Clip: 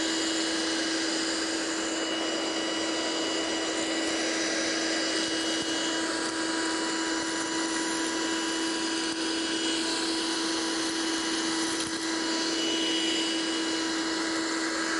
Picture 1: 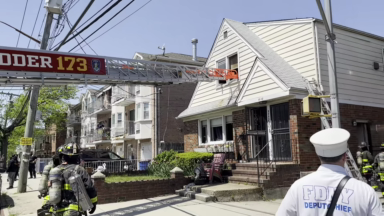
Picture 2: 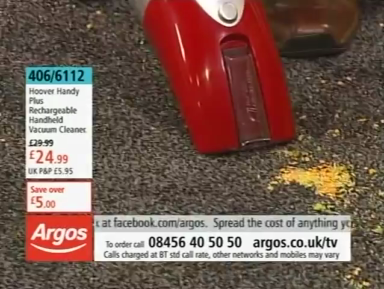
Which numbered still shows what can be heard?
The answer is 2